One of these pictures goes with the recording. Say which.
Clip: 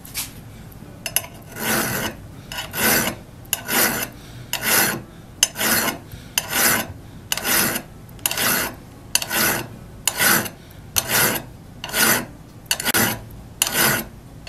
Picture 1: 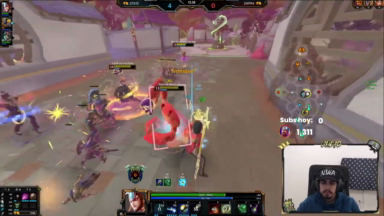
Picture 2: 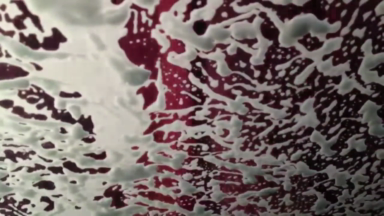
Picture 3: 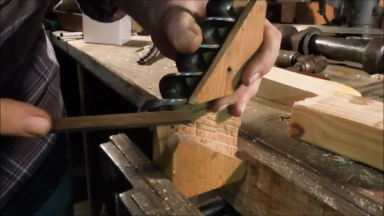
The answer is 3